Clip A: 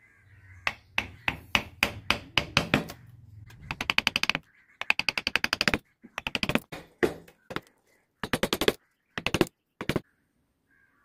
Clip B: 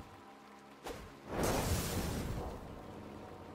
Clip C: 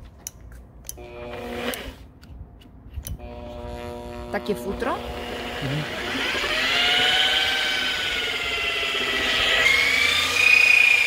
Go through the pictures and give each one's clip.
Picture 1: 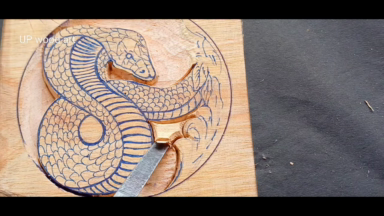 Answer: A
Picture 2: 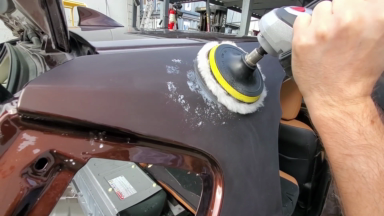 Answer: C